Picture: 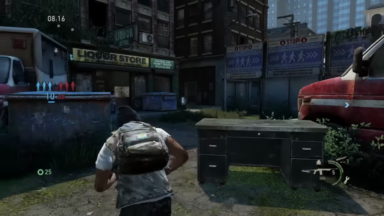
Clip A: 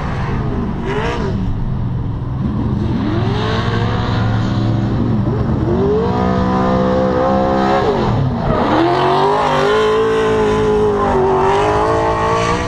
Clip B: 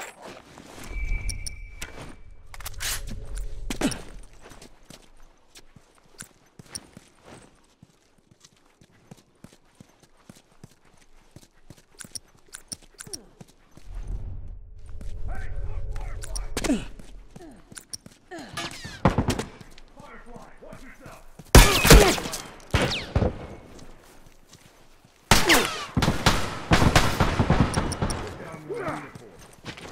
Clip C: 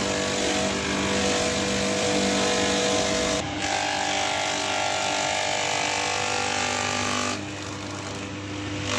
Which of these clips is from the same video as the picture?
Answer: B